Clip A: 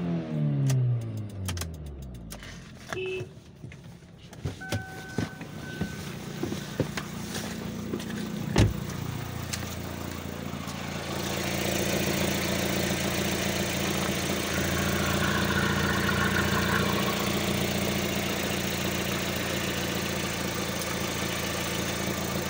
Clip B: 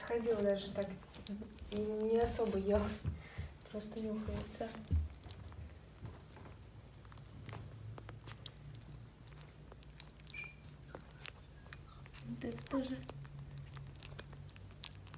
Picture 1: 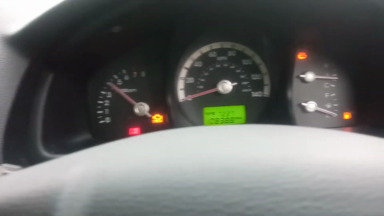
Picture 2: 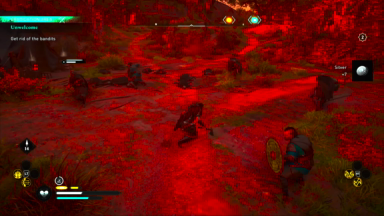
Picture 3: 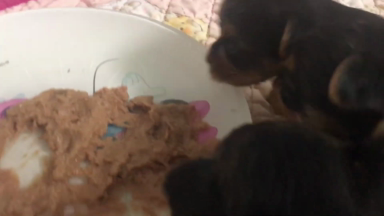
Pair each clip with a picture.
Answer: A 1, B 3